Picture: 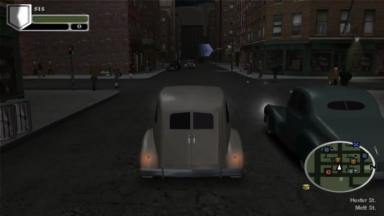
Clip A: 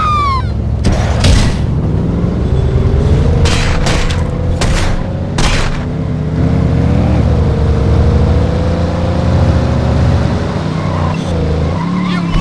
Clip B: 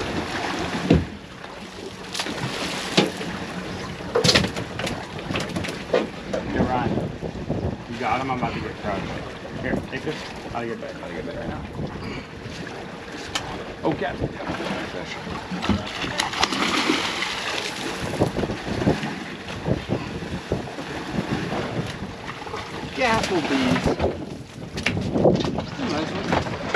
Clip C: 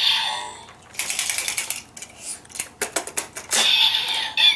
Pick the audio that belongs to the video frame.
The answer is A